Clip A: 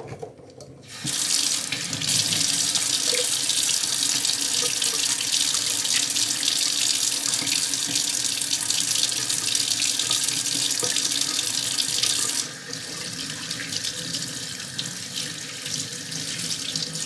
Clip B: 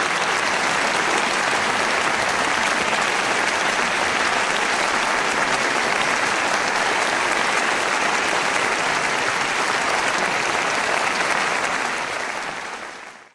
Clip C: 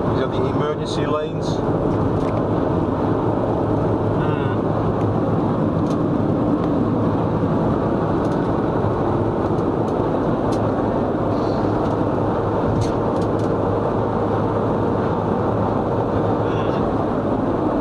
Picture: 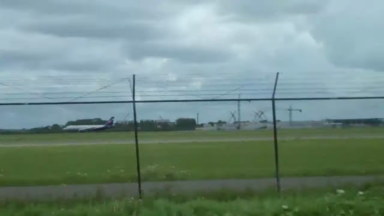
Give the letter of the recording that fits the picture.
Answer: C